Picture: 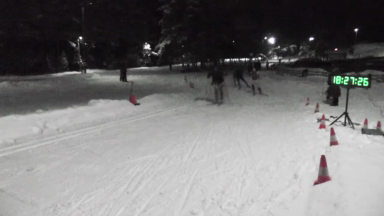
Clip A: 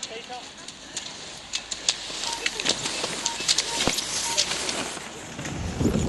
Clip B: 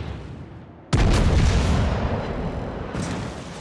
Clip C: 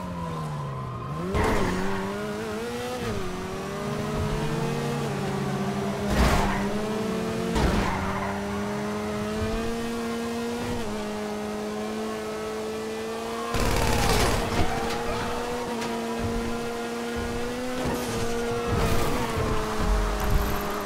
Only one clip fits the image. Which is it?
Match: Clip A